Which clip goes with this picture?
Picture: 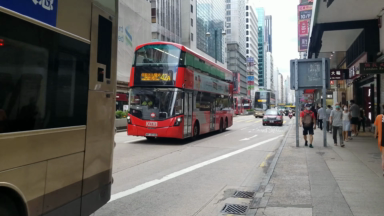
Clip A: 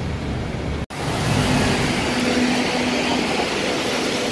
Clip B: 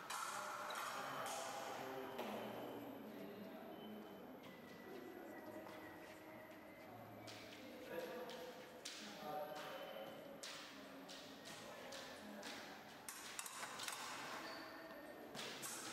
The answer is A